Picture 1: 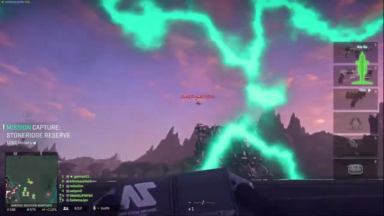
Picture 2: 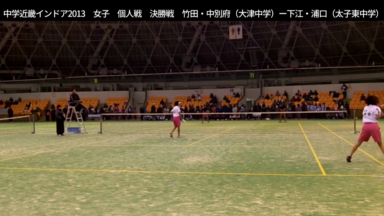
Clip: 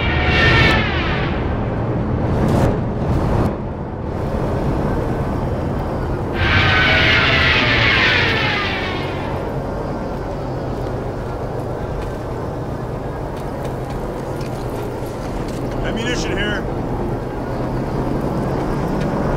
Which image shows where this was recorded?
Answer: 1